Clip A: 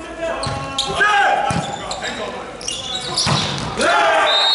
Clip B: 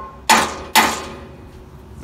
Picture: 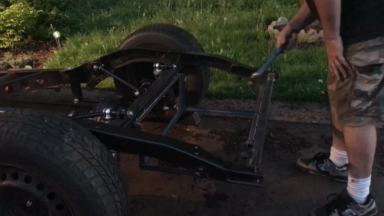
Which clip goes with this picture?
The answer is B